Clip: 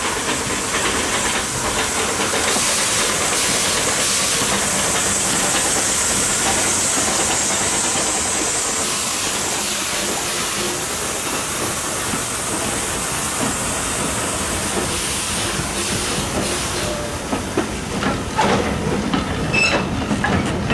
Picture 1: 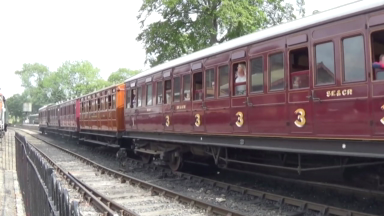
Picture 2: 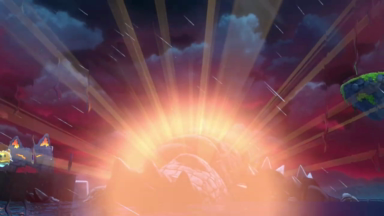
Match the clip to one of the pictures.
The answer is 1